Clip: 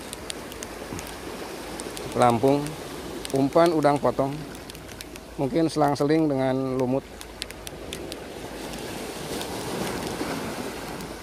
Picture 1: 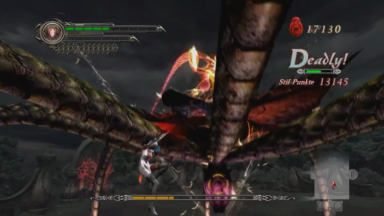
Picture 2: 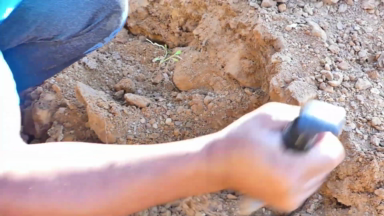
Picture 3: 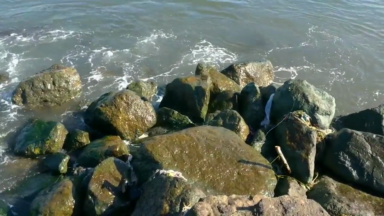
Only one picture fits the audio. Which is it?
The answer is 3